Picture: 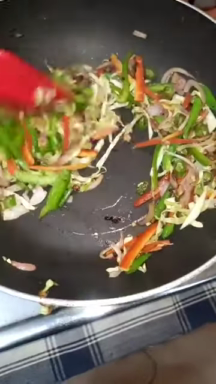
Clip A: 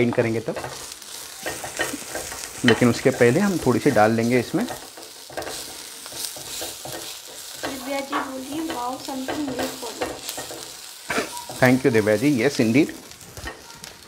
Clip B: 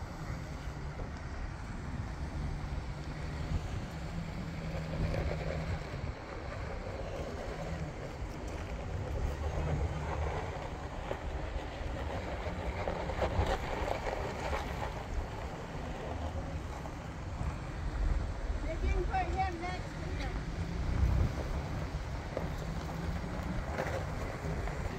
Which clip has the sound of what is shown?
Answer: A